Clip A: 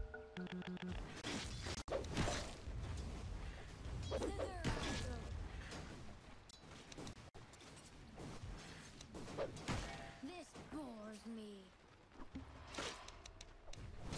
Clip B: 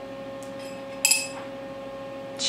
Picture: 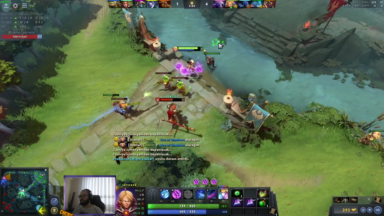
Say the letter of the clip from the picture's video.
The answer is A